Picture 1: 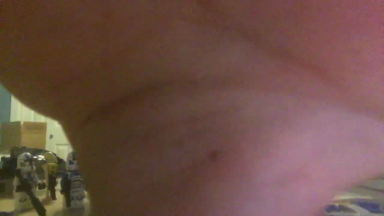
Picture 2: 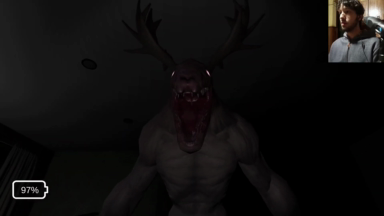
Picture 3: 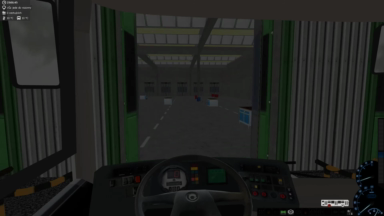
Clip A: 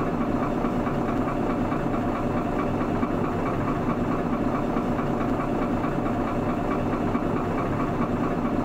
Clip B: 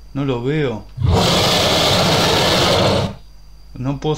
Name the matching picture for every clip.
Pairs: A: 3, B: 2